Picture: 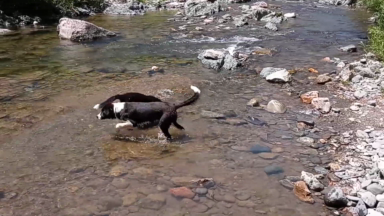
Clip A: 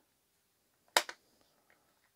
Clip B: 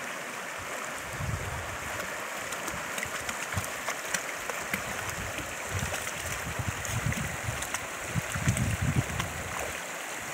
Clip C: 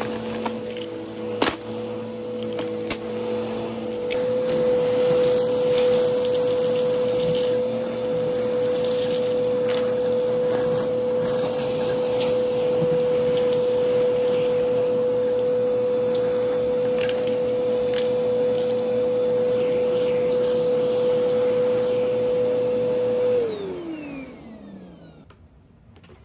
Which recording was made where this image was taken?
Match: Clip B